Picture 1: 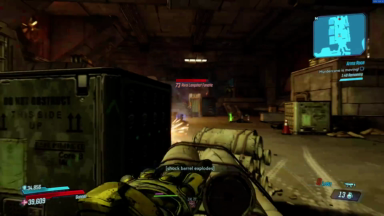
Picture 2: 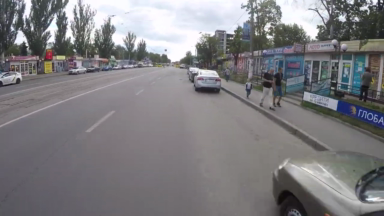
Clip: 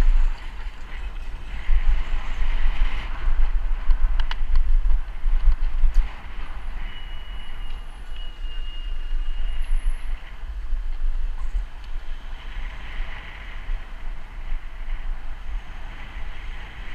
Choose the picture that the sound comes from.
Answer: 2